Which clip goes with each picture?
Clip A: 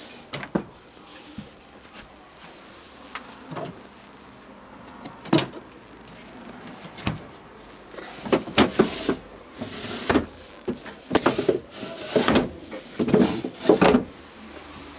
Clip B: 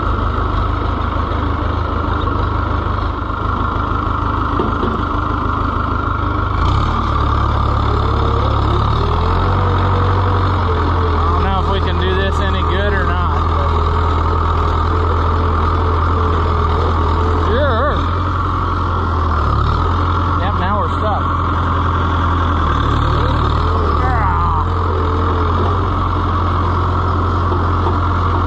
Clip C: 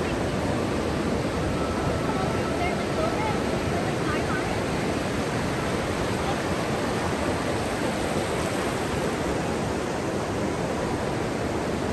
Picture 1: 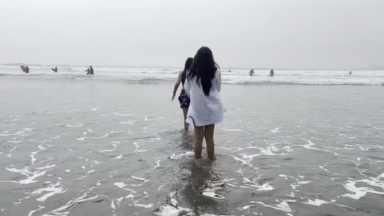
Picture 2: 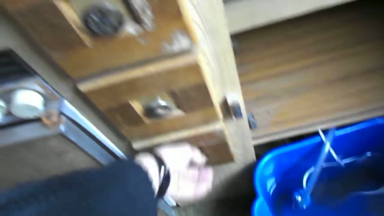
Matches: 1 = C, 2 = A